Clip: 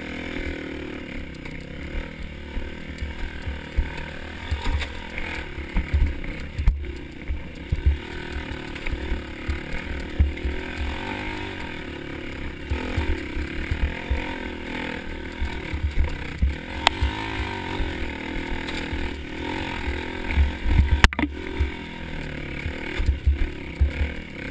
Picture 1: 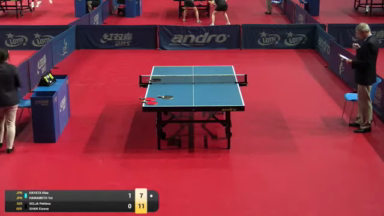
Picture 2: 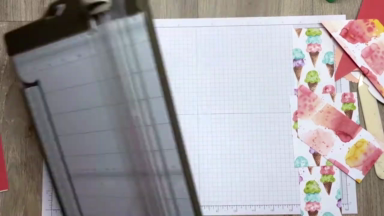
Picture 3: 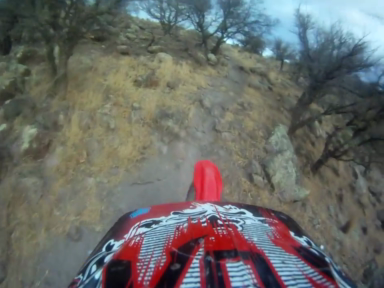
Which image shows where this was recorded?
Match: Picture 3